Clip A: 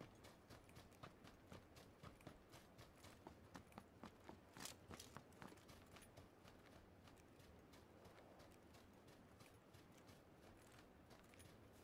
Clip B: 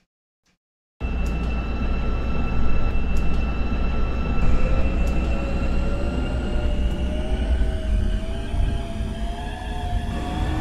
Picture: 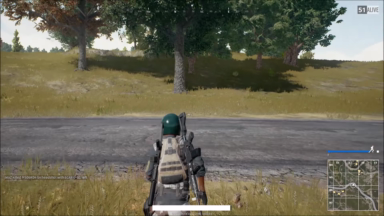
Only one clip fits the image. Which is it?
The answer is A